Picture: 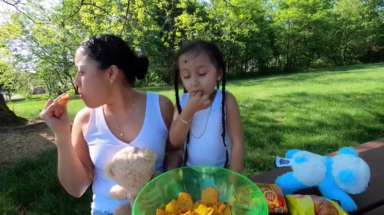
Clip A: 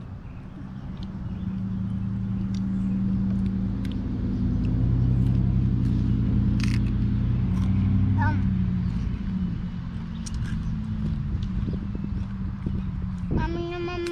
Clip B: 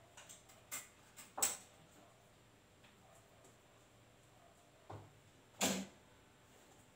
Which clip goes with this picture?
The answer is A